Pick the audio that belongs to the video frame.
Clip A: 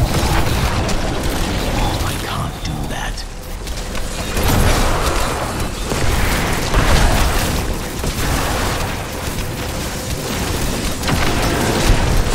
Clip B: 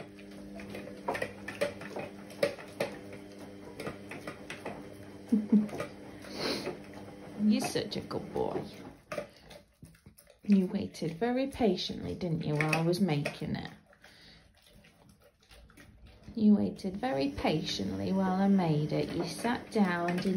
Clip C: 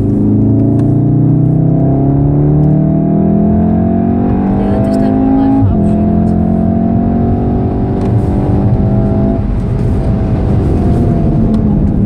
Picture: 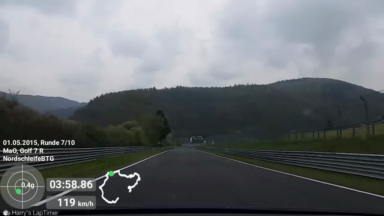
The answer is C